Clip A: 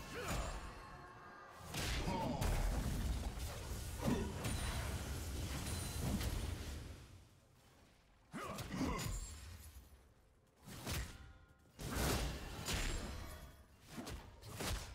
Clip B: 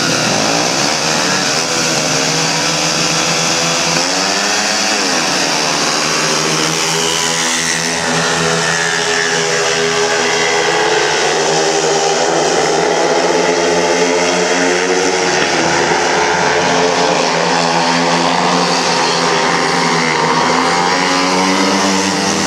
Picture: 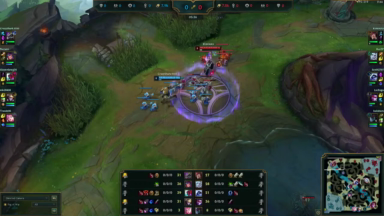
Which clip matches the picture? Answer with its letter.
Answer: A